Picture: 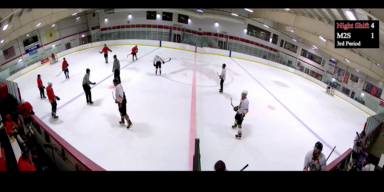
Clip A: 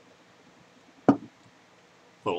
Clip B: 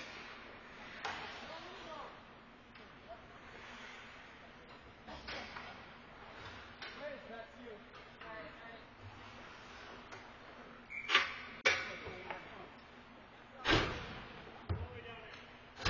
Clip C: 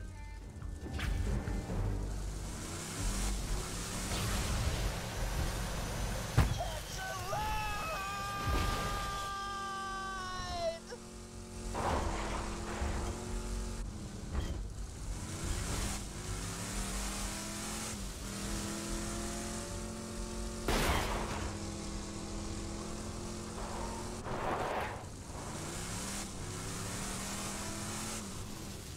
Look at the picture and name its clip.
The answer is B